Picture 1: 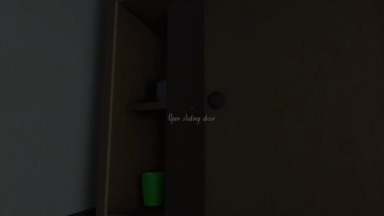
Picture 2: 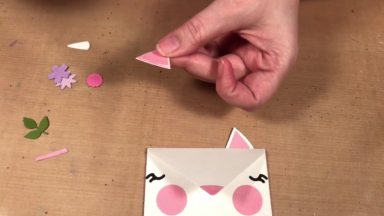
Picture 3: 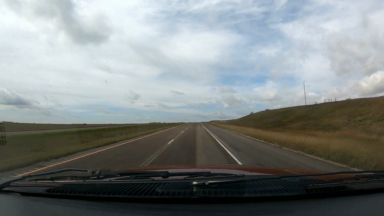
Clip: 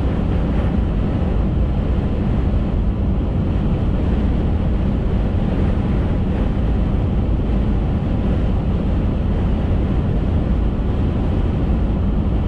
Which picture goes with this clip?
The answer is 3